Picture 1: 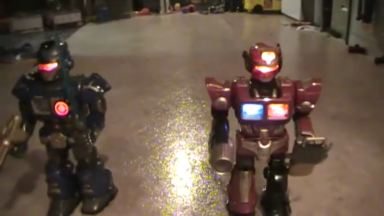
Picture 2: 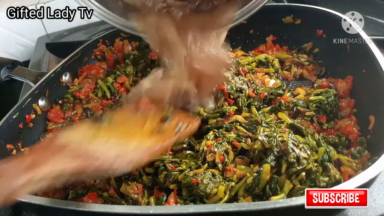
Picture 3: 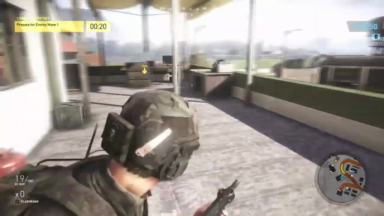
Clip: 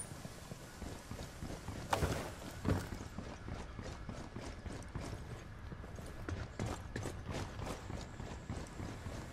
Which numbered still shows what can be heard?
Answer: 3